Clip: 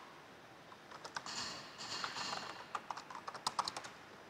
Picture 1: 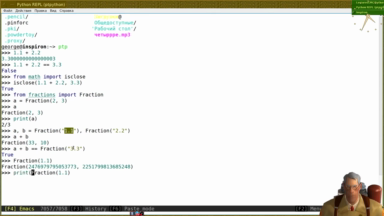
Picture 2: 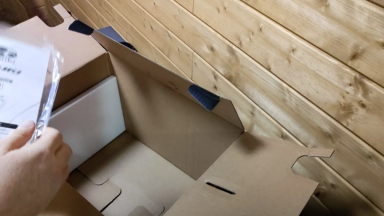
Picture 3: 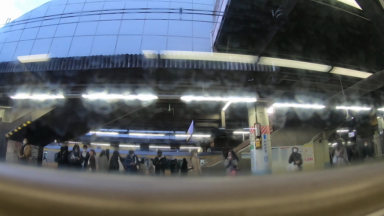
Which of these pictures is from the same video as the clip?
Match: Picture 1